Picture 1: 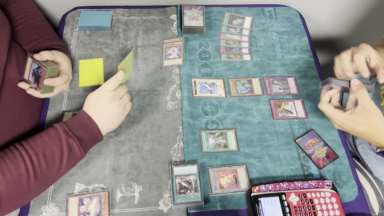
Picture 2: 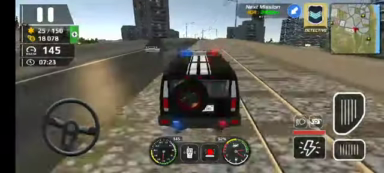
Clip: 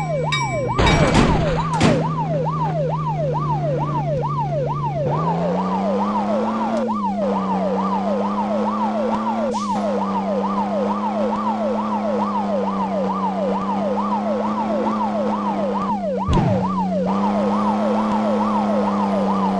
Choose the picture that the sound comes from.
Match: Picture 2